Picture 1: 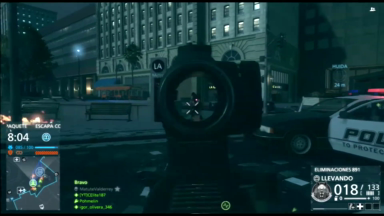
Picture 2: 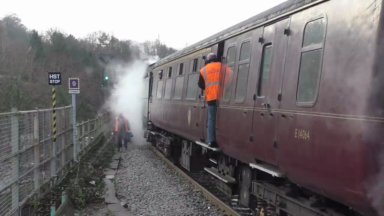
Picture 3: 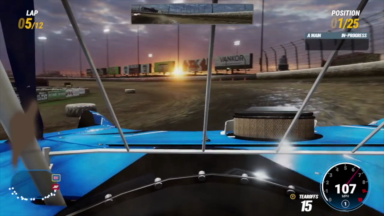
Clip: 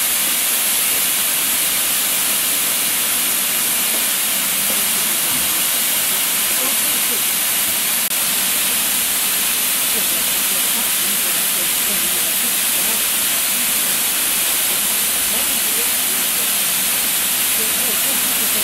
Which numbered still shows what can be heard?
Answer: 2